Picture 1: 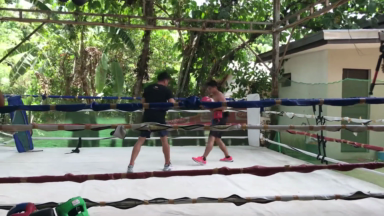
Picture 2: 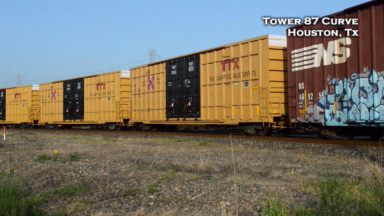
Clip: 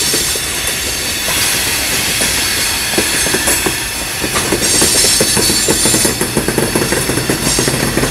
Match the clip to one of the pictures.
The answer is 2